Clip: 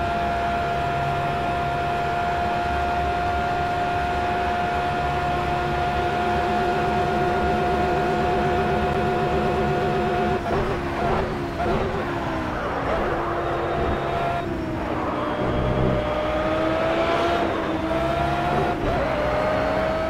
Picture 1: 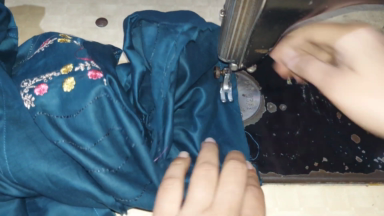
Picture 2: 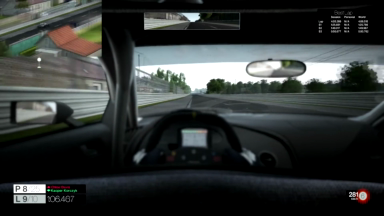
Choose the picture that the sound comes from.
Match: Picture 2